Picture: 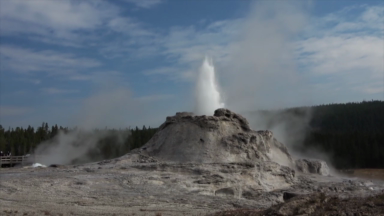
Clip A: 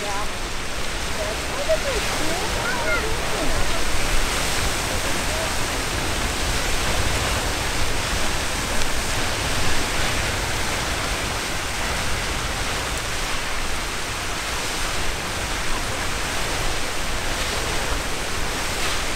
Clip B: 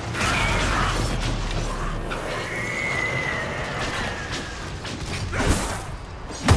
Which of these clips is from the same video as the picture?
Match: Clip A